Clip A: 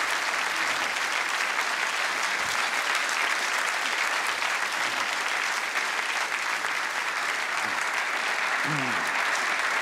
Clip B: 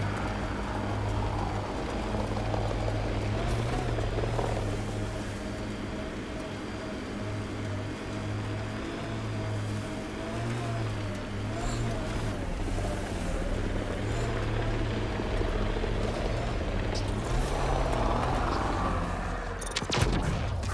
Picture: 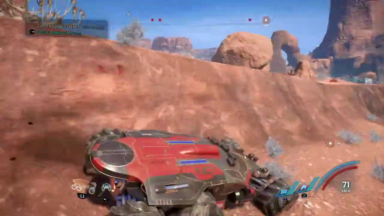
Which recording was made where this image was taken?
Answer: B